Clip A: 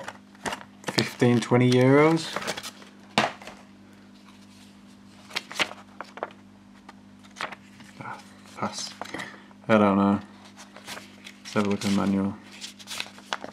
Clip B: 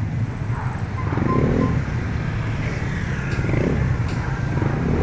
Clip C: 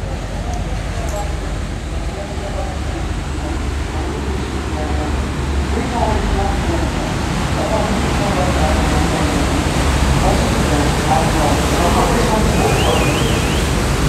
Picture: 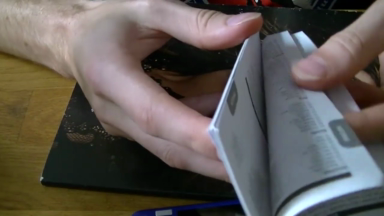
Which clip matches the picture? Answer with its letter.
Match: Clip A